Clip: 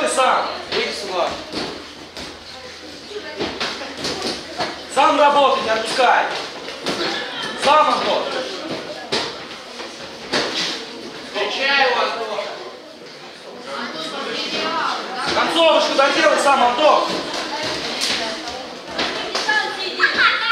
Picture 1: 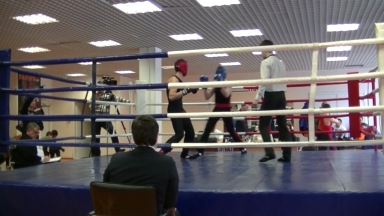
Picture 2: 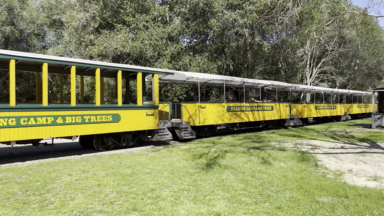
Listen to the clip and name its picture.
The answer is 1